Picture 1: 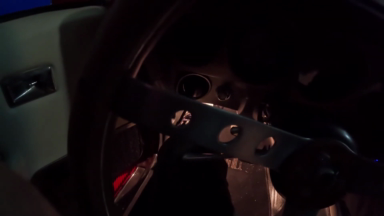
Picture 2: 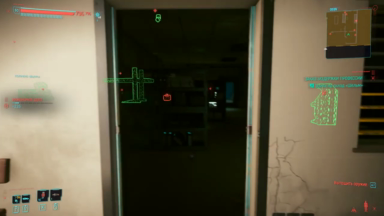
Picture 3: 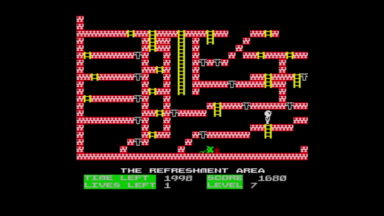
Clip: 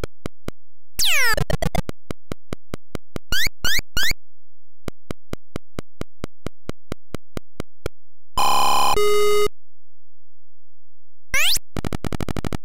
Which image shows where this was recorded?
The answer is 3